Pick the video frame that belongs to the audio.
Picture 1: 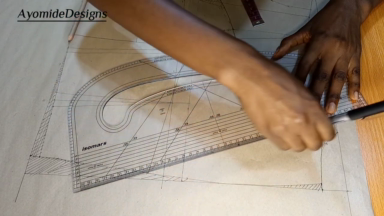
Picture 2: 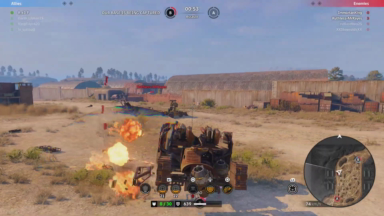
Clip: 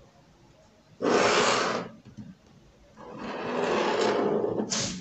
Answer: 1